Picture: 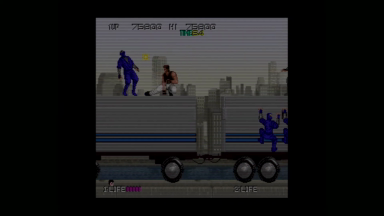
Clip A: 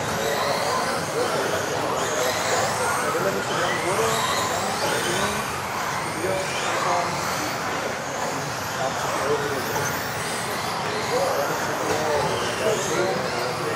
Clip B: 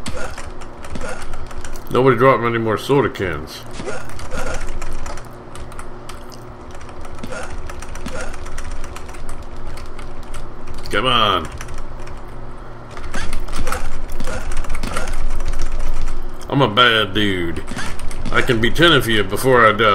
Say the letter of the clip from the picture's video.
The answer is B